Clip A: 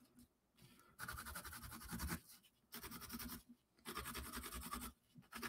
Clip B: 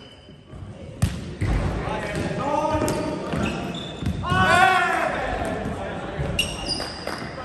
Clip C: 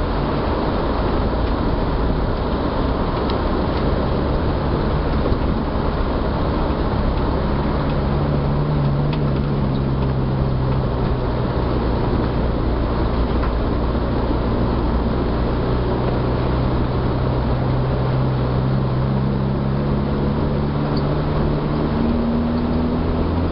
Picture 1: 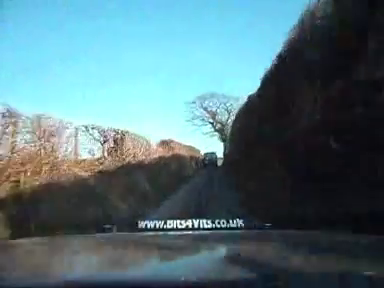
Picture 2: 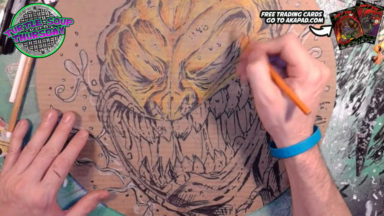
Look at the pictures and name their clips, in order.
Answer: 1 C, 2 A